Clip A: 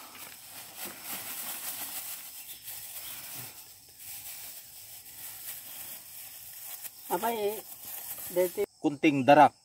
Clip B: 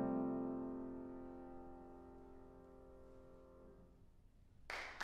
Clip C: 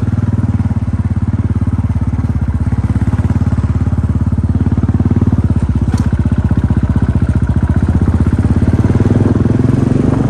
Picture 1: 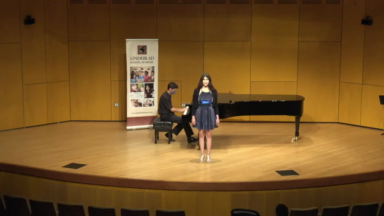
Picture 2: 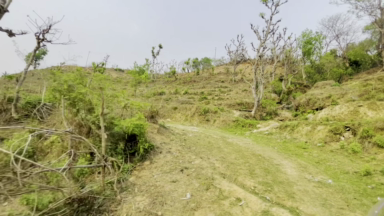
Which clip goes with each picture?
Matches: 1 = B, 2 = C